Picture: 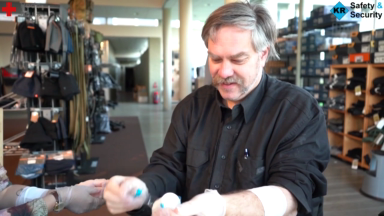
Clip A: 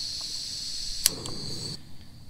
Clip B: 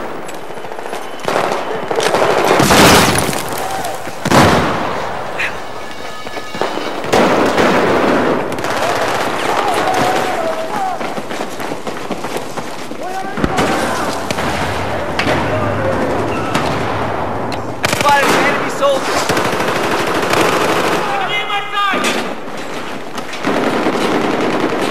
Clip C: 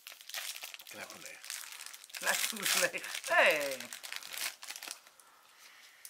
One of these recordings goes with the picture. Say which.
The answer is C